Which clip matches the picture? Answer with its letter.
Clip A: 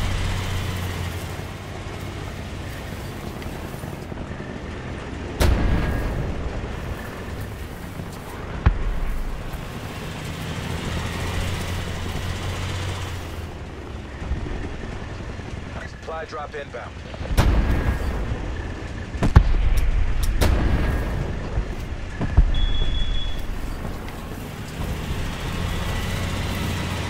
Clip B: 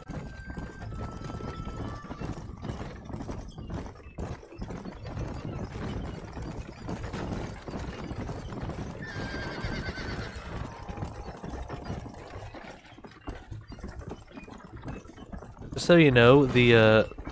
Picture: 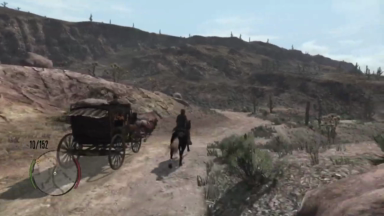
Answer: B